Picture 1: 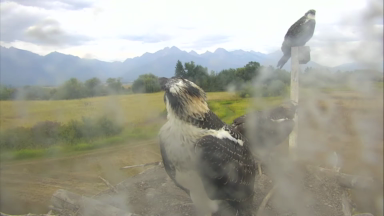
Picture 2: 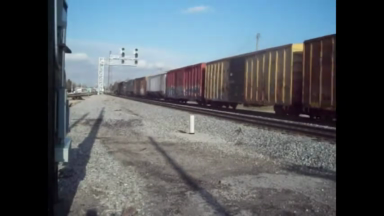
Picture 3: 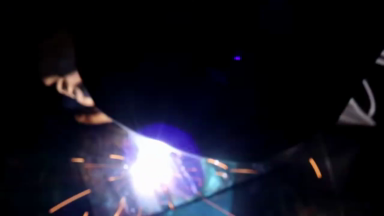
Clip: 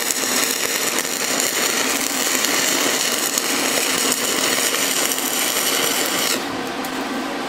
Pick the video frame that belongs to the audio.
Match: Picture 3